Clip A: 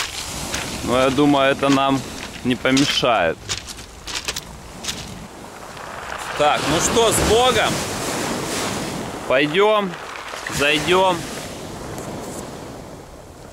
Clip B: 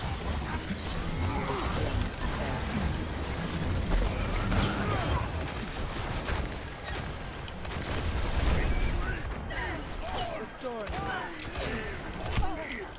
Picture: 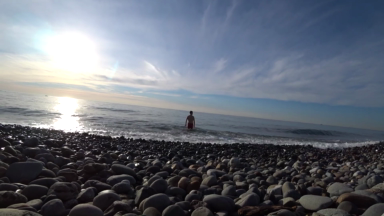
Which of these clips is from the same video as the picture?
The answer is A